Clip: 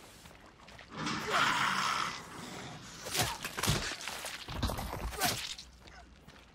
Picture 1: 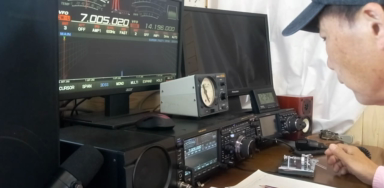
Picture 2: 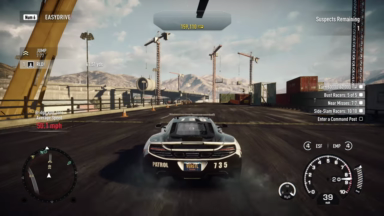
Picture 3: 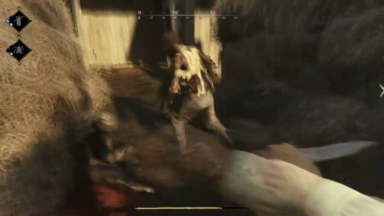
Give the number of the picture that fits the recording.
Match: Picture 3